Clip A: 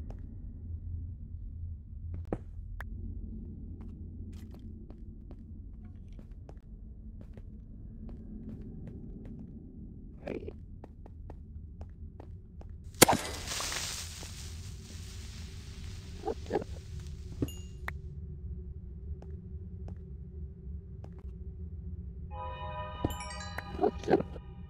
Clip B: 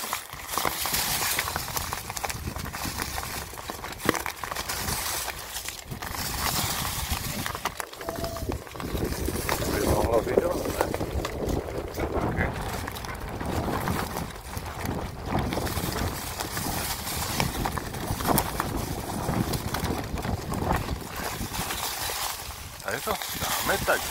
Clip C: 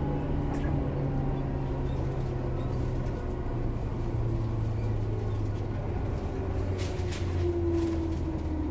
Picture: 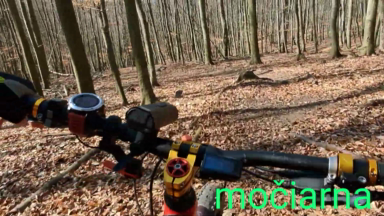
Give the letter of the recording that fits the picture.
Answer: B